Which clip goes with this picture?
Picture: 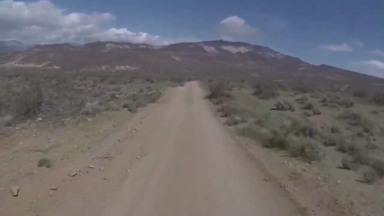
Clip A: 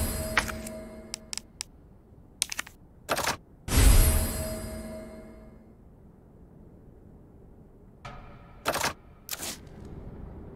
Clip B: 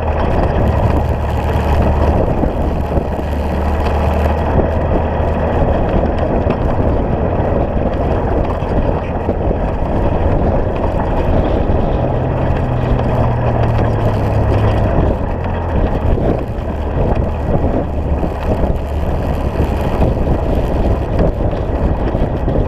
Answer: B